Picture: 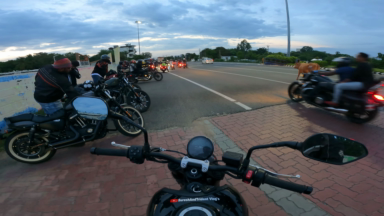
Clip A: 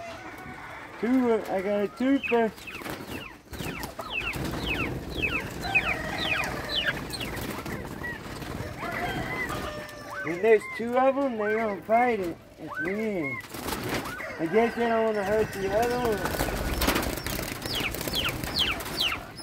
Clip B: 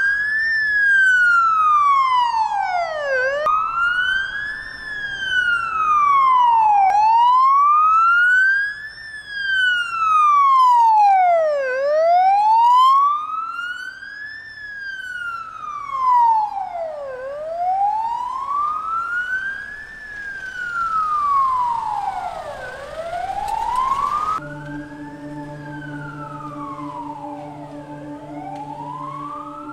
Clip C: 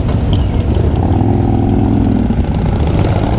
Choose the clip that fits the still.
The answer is C